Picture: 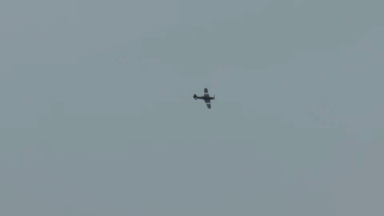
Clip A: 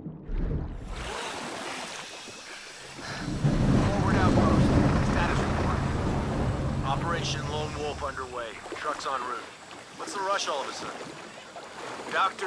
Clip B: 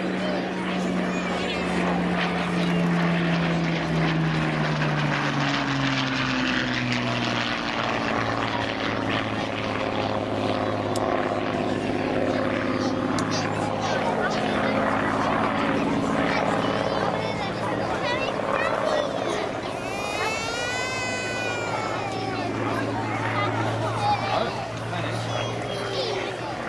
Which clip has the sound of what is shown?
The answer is B